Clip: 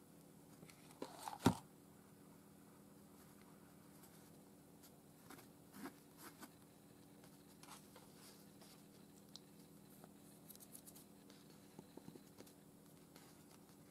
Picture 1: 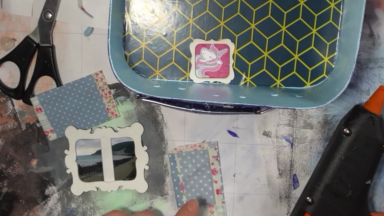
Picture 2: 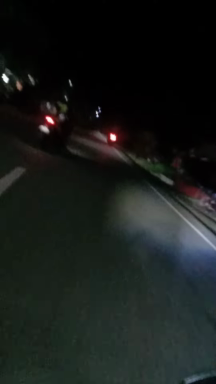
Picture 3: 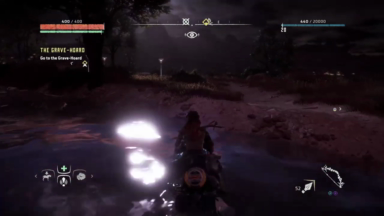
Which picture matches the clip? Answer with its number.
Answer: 1